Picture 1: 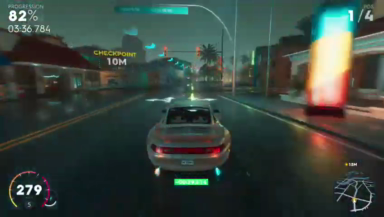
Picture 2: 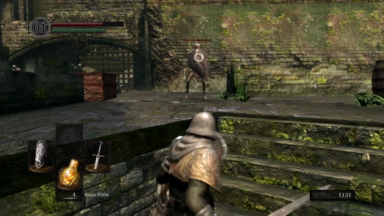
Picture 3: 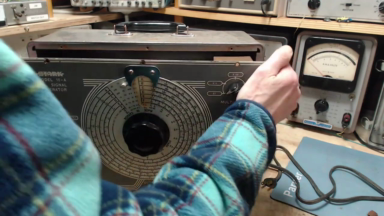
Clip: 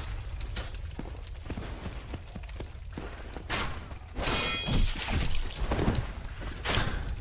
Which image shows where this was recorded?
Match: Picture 2